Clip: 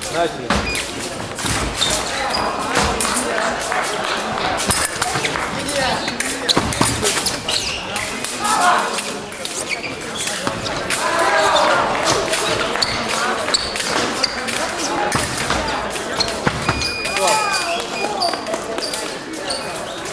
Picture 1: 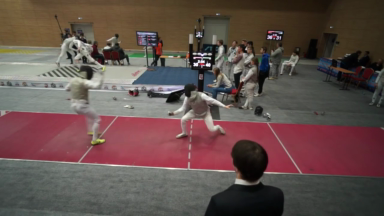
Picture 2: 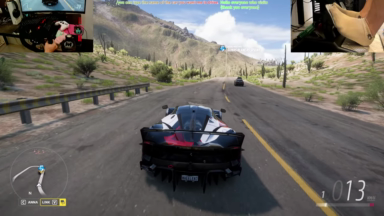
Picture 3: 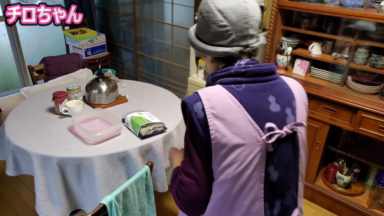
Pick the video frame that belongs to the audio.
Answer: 1